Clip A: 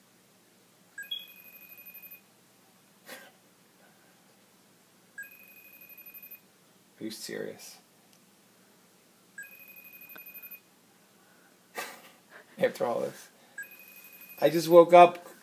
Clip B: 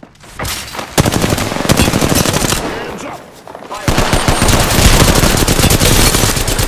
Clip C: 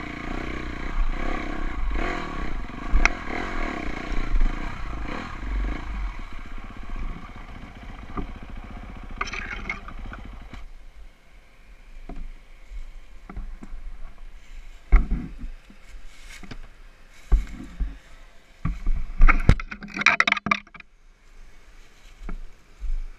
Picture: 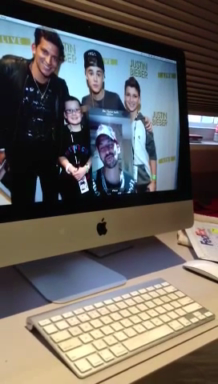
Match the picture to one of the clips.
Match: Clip A